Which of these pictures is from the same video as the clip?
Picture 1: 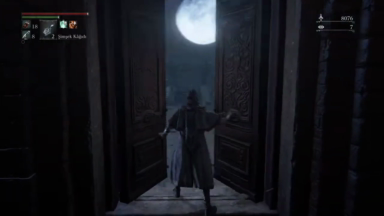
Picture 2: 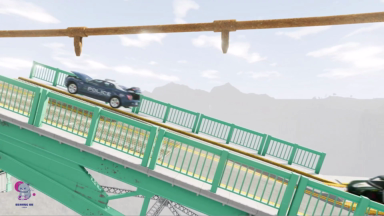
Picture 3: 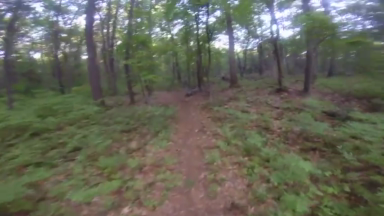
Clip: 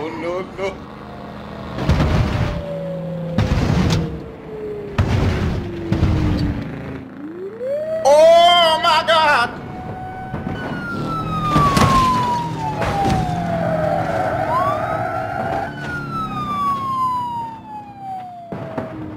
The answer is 2